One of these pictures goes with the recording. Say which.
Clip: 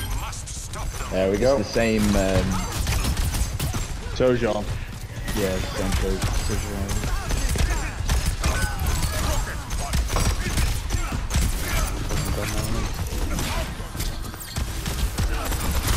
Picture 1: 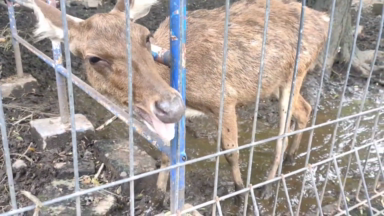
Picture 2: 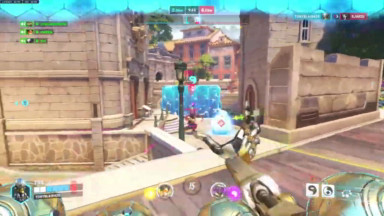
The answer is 2